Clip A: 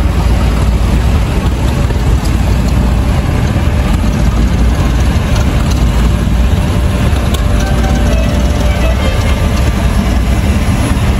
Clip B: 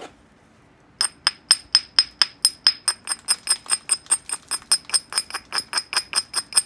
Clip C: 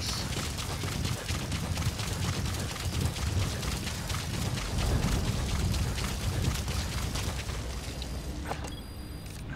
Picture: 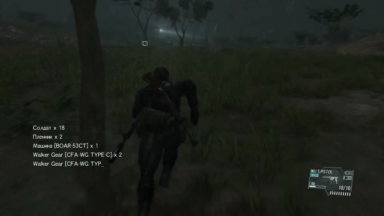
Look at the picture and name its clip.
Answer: C